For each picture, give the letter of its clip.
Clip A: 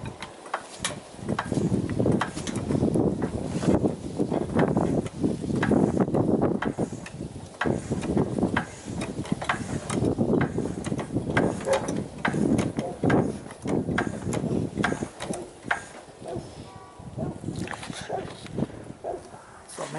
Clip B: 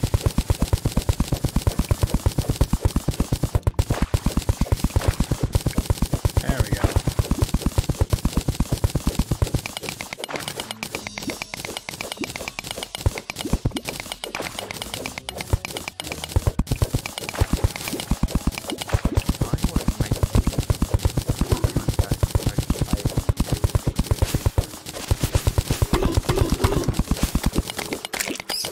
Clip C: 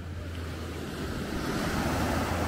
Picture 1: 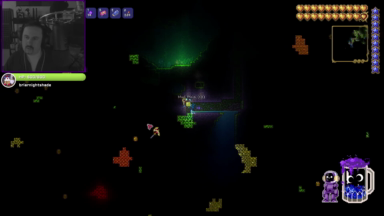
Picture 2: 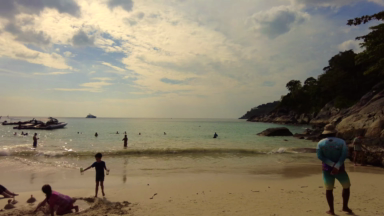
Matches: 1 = B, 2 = C